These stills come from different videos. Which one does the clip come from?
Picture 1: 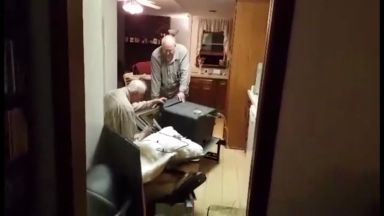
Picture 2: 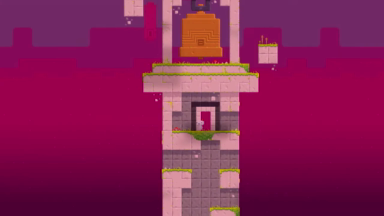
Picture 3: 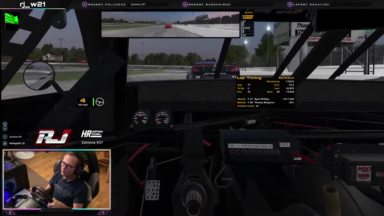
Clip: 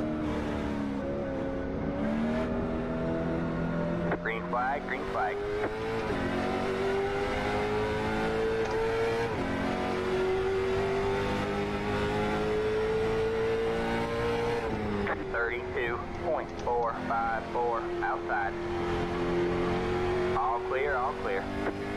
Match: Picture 3